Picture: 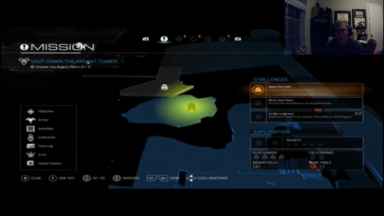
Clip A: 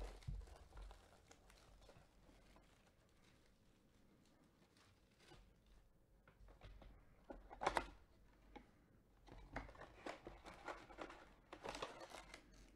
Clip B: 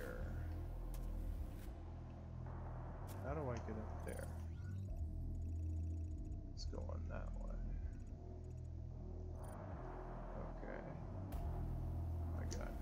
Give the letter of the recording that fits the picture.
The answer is B